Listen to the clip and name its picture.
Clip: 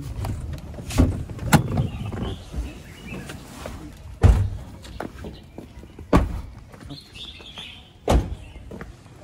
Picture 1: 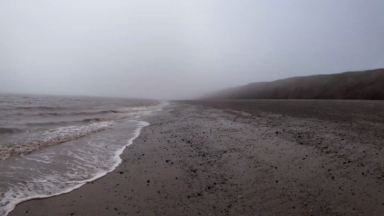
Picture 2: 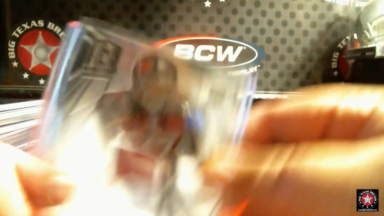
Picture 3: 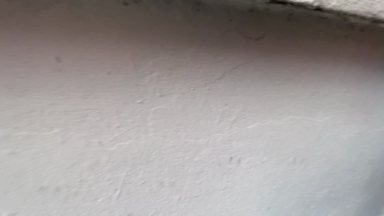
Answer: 3